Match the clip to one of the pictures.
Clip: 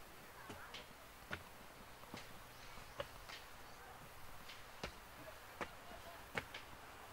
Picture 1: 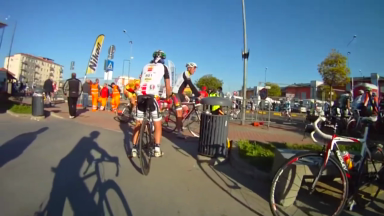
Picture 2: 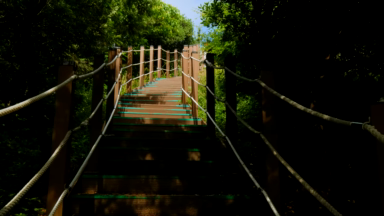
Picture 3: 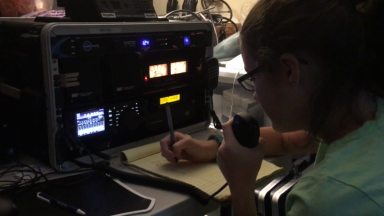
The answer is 2